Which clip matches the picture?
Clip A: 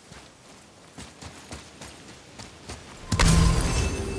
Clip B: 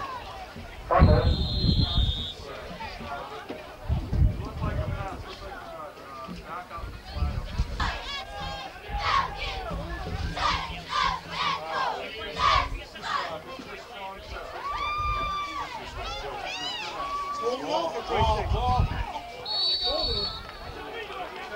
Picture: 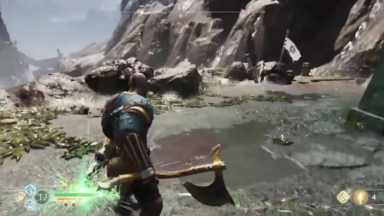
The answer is A